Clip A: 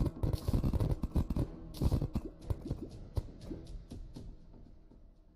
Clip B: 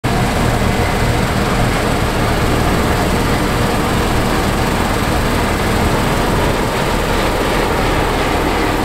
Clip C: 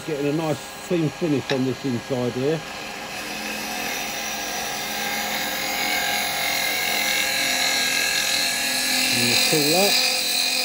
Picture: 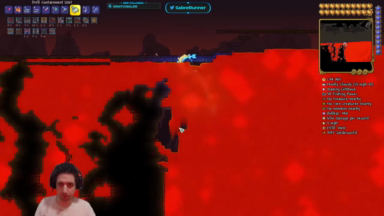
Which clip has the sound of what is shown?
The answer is A